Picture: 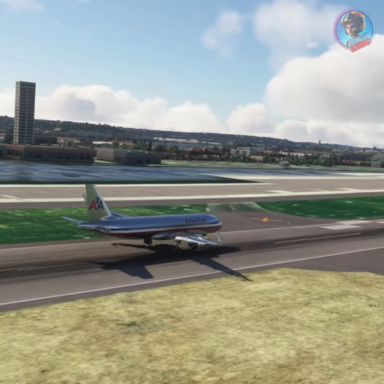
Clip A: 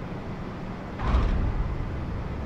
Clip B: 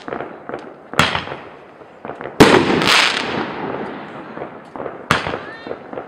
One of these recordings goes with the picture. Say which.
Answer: A